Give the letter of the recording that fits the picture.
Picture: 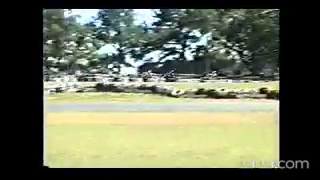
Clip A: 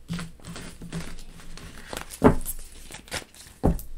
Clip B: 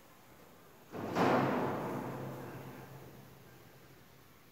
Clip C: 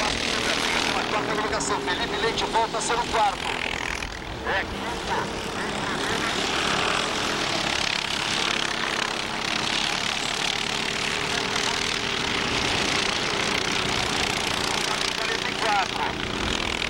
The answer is C